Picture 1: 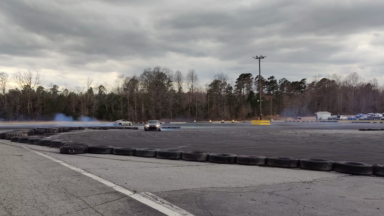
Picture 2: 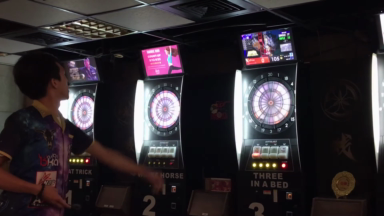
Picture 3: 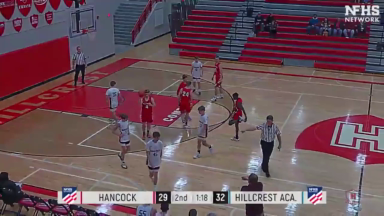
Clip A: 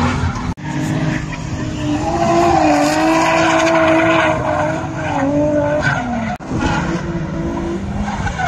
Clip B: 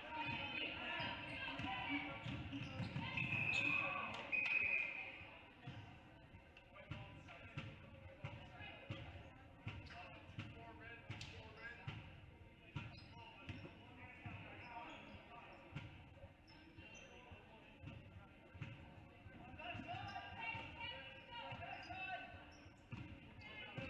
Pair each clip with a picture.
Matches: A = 1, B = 3